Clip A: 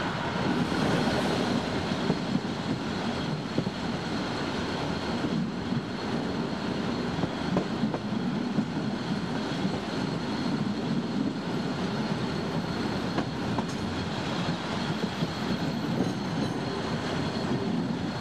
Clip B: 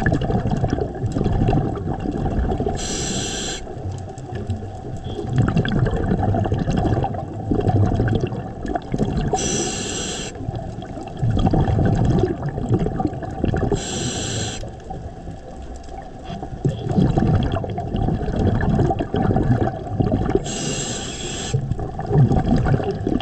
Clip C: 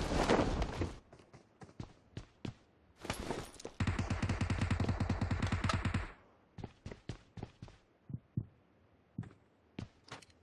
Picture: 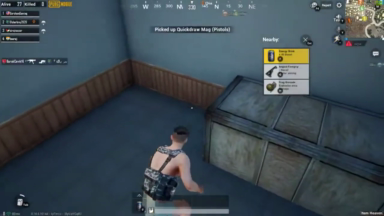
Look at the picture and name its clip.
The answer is C